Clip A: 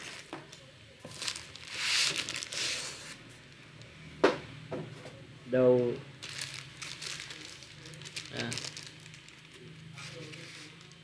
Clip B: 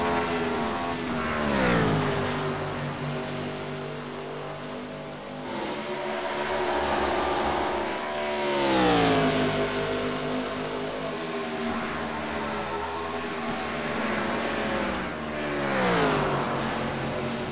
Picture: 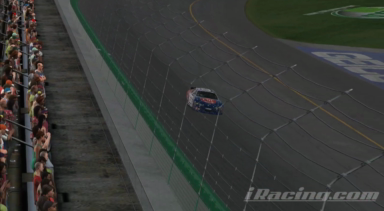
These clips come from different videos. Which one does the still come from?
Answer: B